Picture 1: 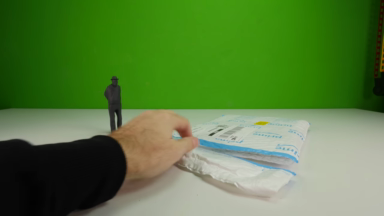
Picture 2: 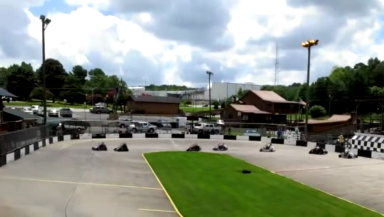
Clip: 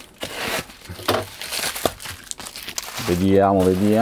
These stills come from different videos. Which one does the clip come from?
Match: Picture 1